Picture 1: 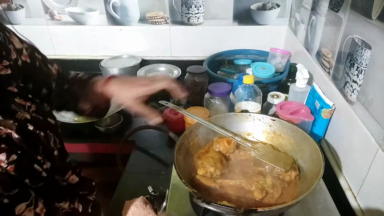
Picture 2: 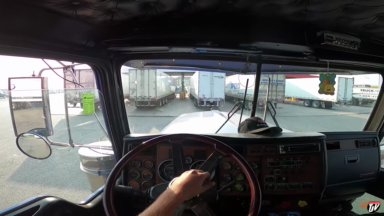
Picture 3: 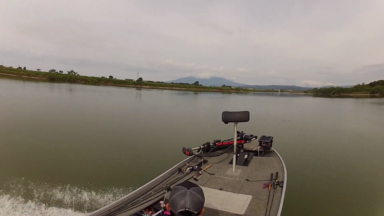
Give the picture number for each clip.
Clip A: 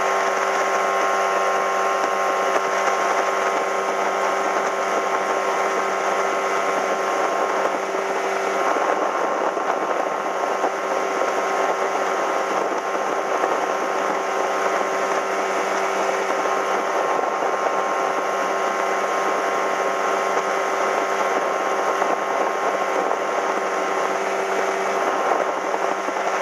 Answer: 3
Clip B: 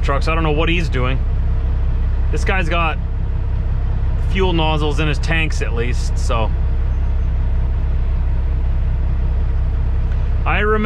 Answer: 2